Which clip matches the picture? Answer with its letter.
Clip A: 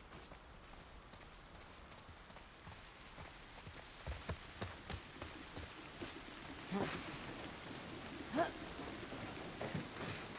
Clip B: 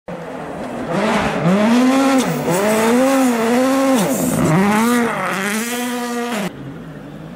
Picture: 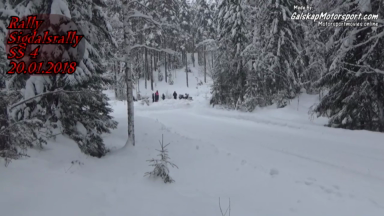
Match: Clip B